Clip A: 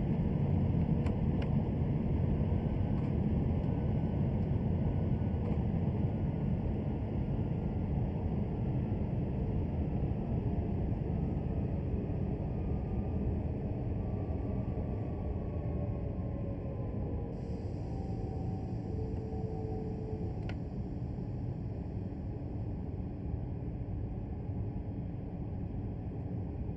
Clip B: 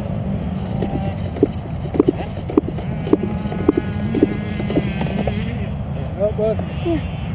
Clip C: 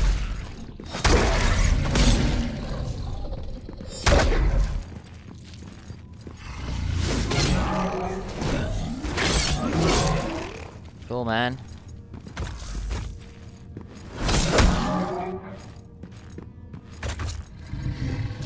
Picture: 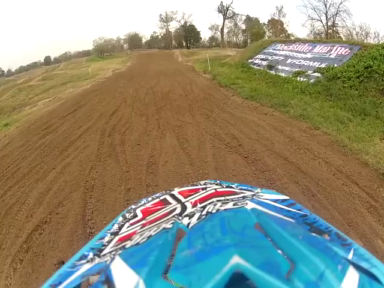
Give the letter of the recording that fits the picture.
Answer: B